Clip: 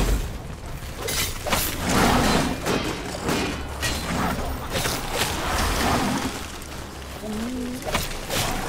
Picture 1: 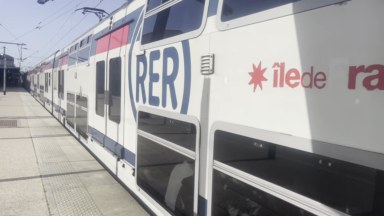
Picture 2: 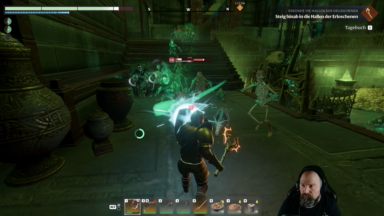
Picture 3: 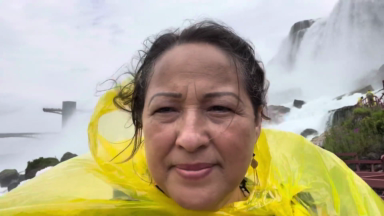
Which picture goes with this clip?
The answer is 2